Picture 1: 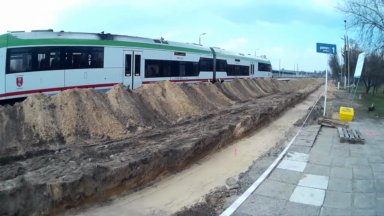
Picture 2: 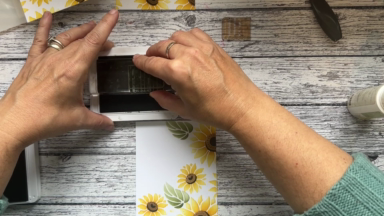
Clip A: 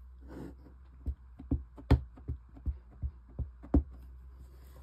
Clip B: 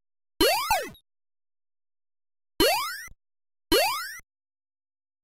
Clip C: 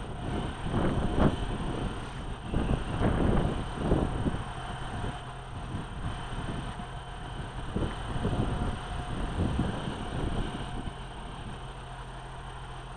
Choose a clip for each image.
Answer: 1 C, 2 A